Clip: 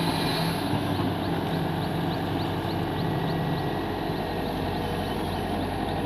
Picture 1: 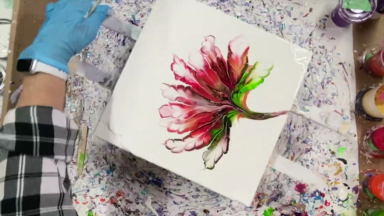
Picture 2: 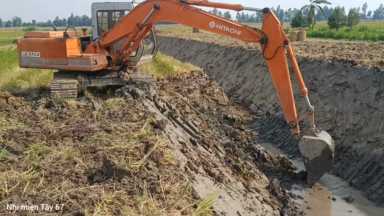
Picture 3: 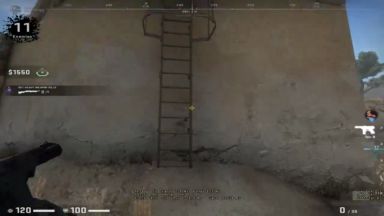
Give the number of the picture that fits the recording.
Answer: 2